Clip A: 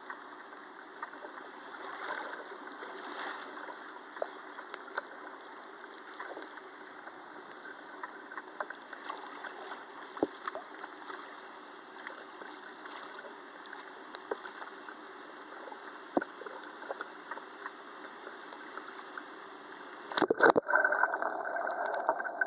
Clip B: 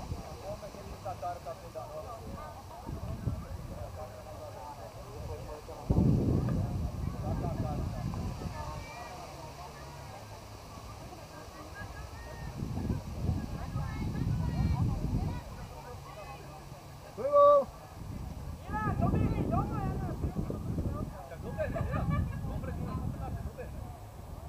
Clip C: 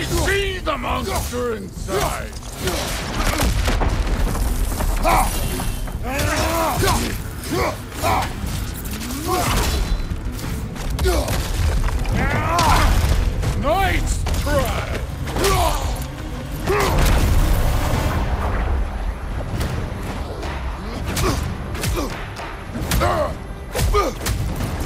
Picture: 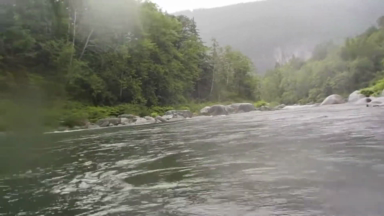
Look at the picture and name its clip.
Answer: A